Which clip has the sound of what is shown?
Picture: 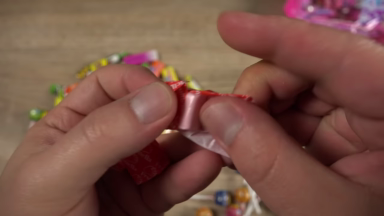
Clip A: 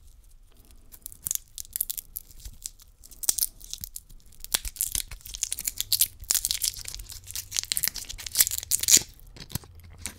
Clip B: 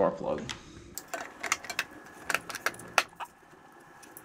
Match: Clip A